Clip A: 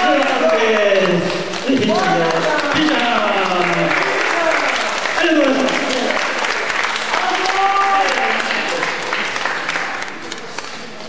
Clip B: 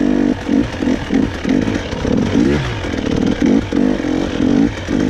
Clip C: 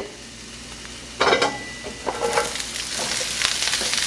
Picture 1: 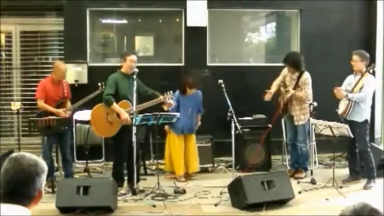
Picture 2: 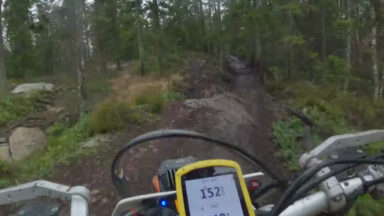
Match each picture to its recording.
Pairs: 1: A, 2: B